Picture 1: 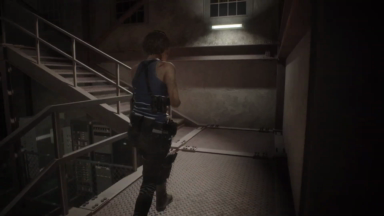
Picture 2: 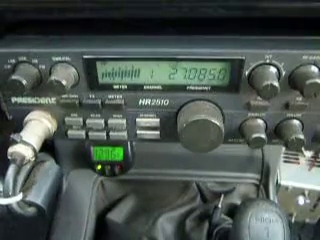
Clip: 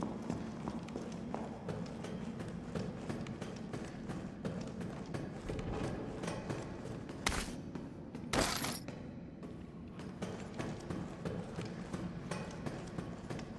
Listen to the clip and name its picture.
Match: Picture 1